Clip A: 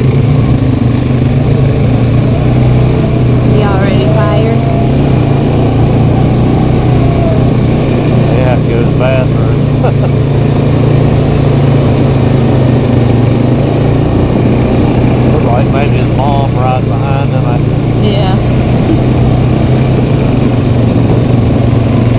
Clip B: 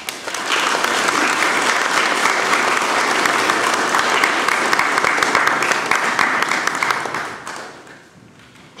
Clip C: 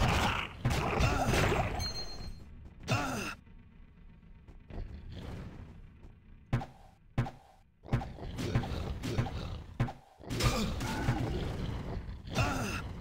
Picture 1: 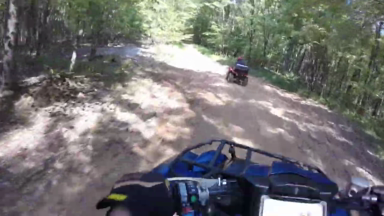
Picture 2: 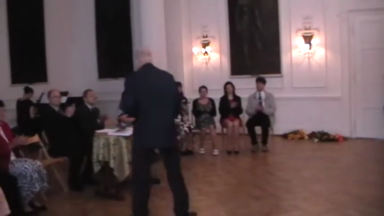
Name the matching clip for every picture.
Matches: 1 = A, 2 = B